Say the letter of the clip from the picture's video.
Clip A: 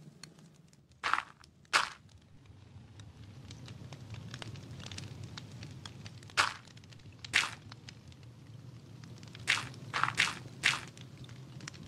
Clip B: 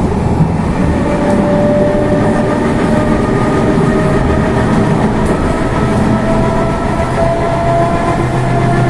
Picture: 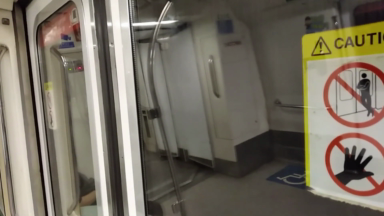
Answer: B